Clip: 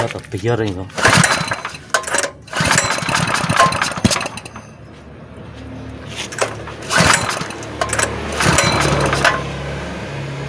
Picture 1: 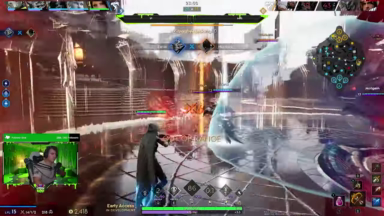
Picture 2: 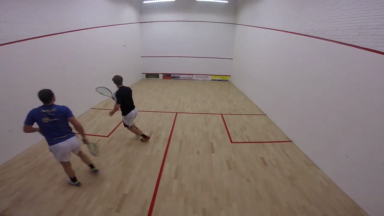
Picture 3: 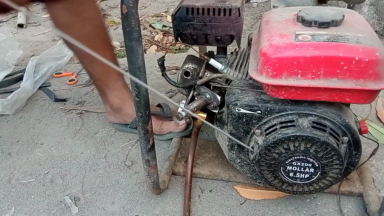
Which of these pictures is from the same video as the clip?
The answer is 3